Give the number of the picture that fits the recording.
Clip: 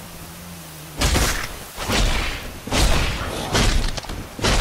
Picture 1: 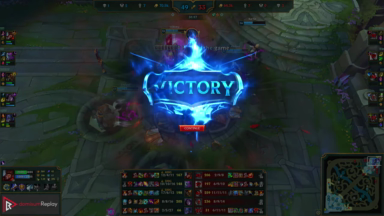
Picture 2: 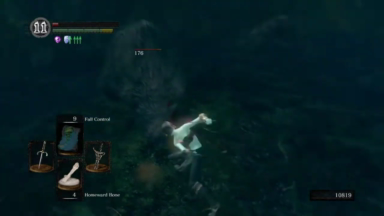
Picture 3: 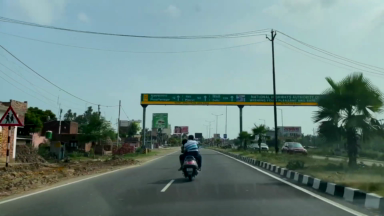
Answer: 2